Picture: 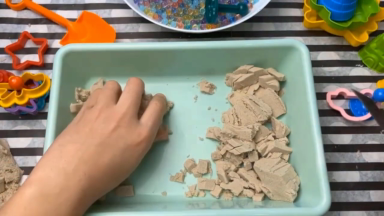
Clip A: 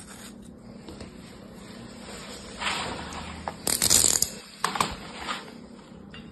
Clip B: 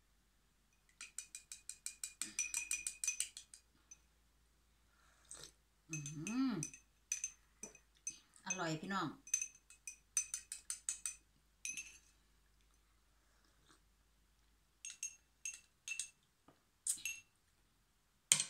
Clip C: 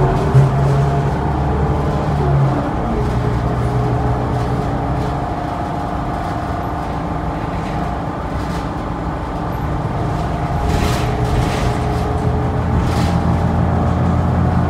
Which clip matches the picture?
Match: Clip A